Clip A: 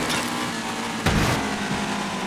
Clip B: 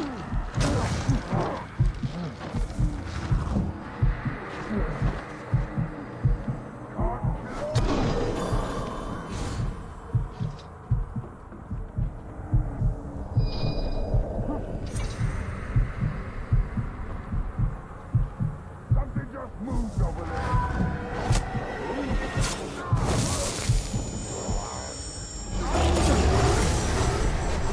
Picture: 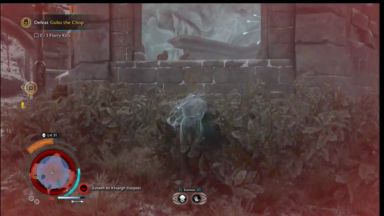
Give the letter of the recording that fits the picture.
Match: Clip B